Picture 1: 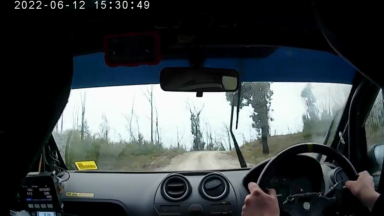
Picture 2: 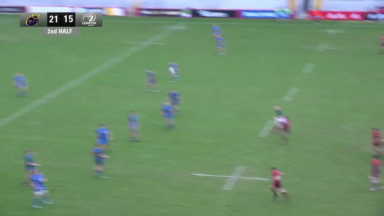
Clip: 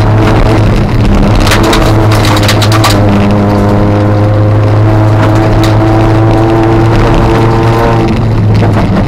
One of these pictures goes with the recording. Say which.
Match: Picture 1